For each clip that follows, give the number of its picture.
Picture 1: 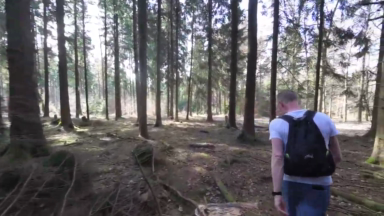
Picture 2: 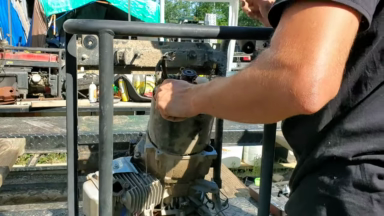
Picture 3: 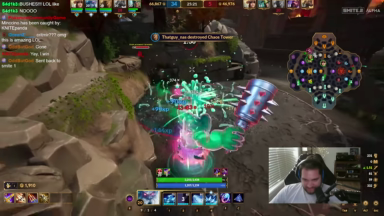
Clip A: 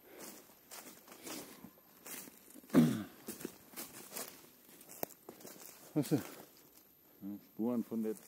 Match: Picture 1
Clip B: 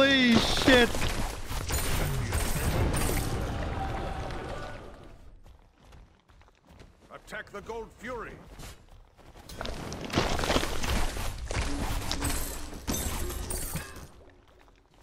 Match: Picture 3